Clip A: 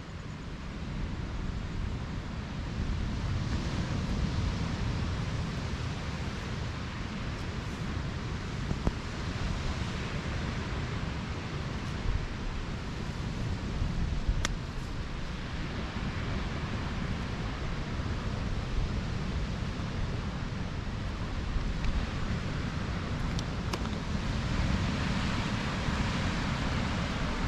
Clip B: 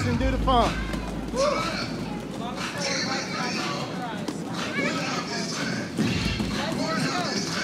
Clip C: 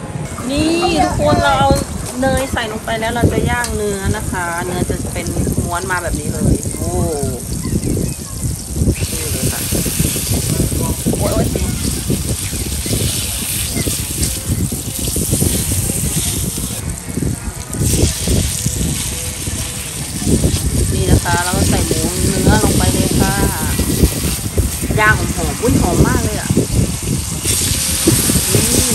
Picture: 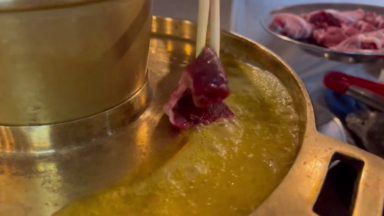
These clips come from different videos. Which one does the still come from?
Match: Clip C